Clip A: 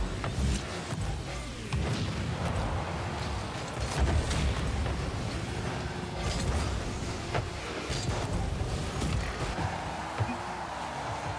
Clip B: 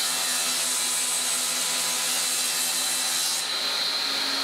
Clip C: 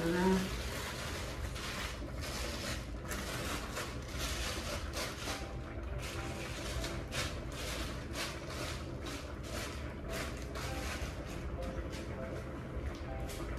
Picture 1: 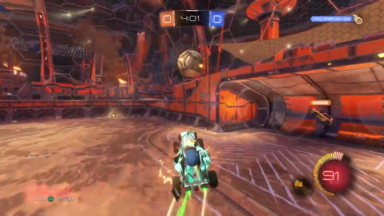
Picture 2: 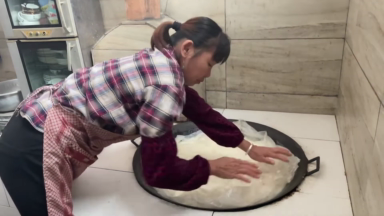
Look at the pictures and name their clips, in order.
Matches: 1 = A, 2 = C